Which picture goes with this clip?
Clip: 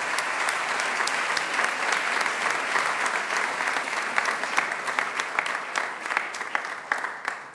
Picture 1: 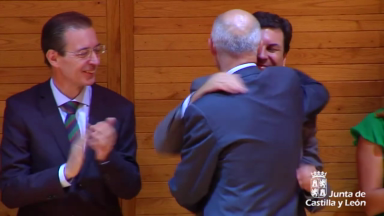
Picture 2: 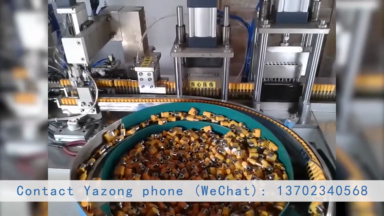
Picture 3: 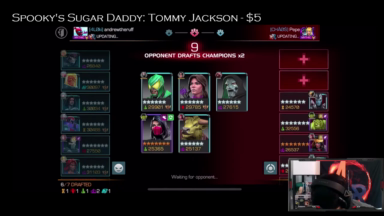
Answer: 1